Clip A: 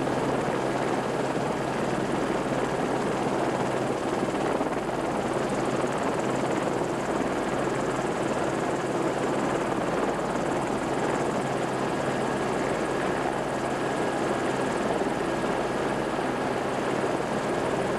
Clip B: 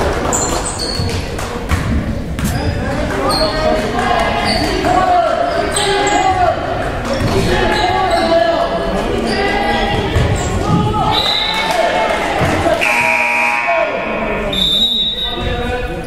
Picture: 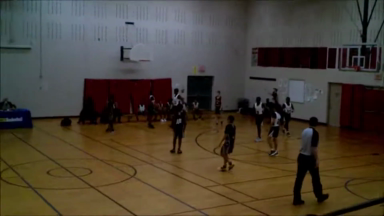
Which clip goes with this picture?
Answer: B